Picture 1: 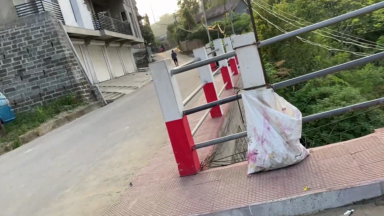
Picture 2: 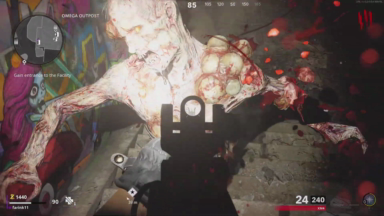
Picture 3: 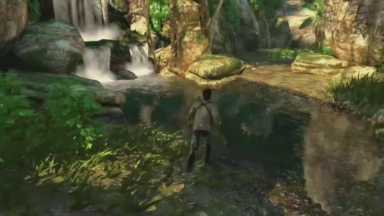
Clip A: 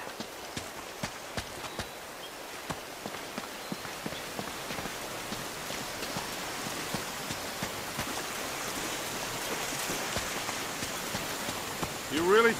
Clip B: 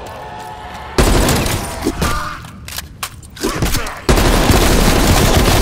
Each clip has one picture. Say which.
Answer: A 3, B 2